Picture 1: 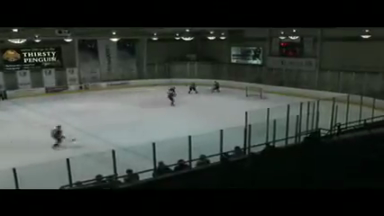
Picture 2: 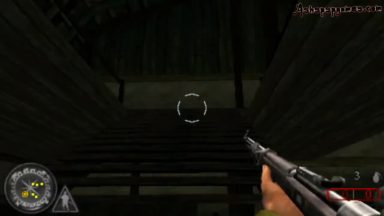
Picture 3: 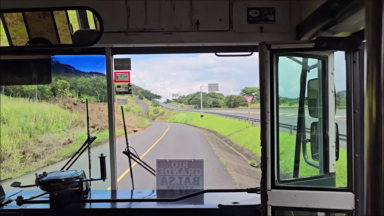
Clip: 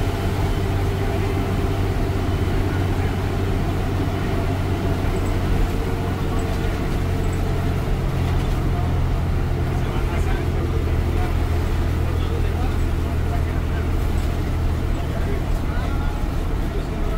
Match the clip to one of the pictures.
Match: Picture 3